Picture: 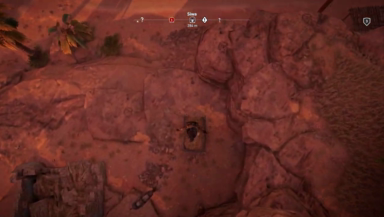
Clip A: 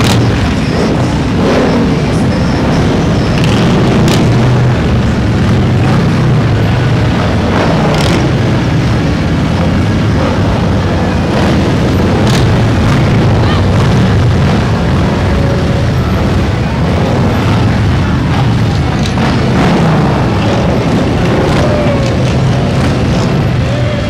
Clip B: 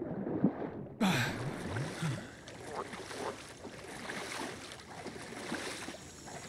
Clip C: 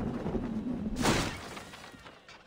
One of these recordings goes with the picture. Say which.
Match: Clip C